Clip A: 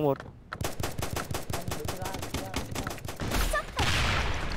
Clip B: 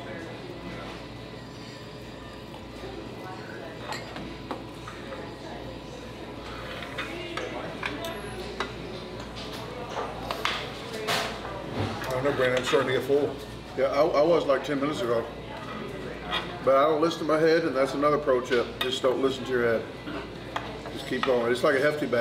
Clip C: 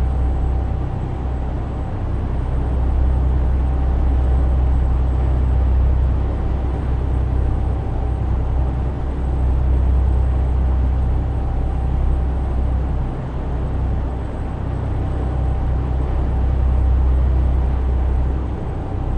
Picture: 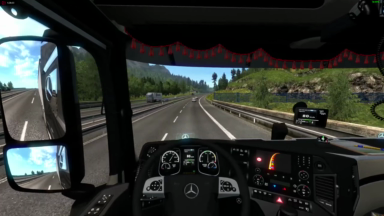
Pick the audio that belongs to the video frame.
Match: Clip C